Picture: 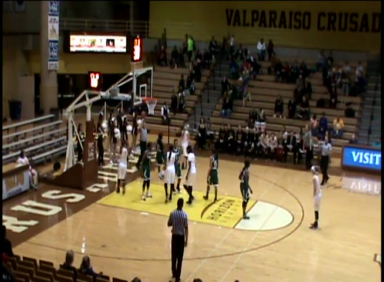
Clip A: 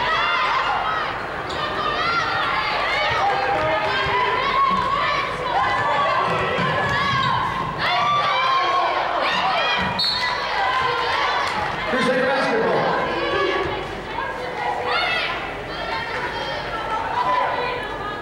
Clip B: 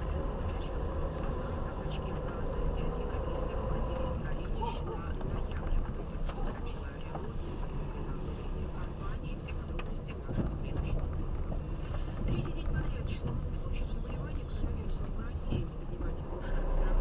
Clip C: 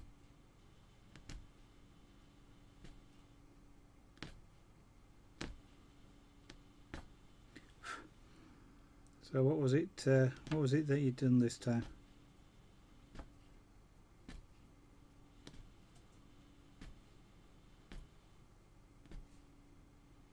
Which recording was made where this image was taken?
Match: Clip A